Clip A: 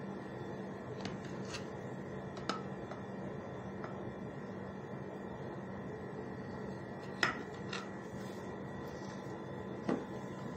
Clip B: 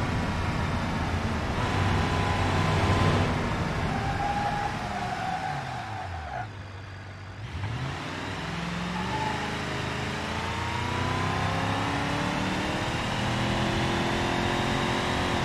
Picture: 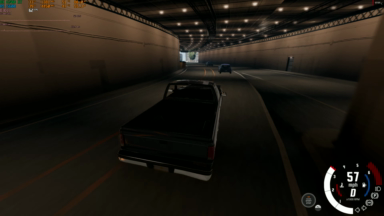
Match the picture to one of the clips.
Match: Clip B